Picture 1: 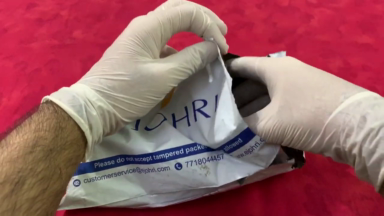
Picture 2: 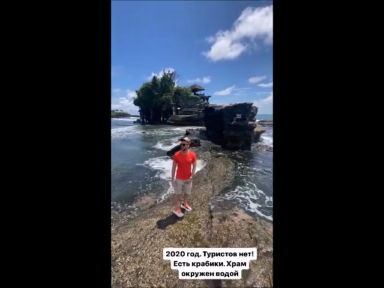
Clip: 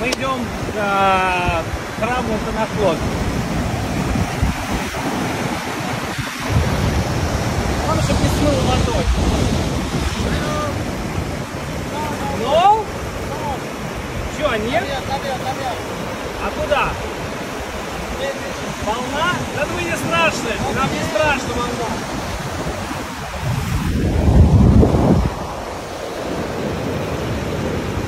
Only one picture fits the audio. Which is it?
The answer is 2